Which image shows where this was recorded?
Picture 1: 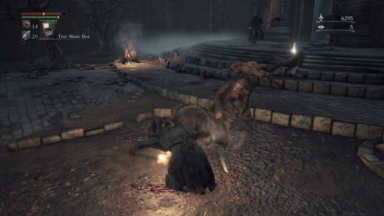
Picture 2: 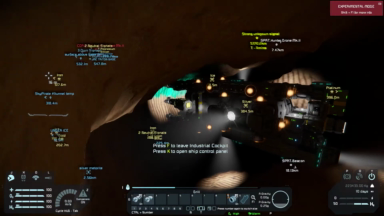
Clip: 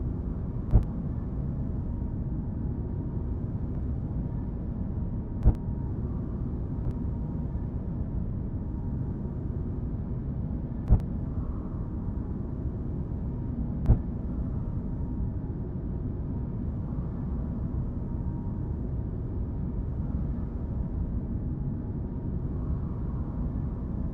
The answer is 2